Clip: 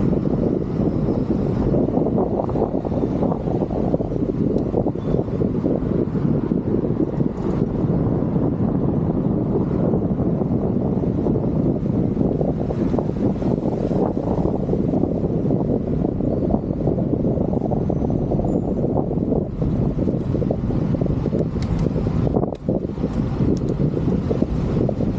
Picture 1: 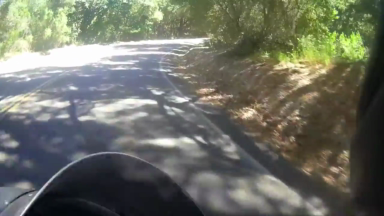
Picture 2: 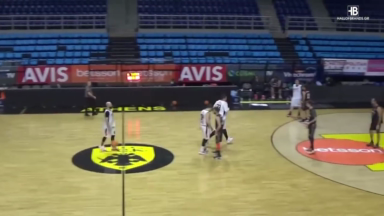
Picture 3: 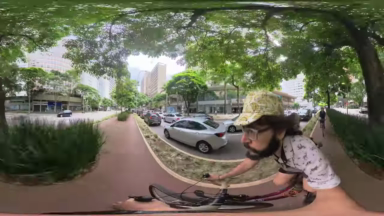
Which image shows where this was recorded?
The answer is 3